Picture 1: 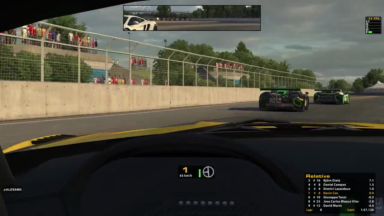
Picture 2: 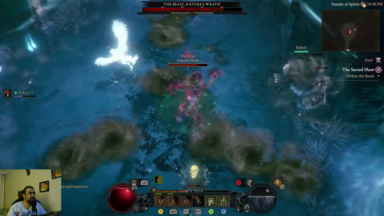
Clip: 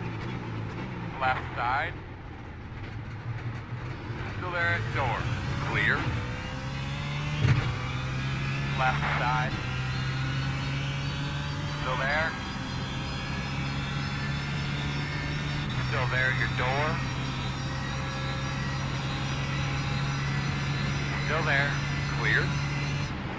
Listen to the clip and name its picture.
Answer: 1